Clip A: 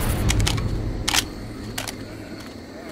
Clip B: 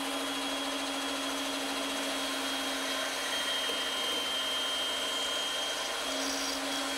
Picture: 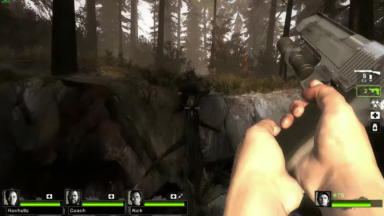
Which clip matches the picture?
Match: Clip A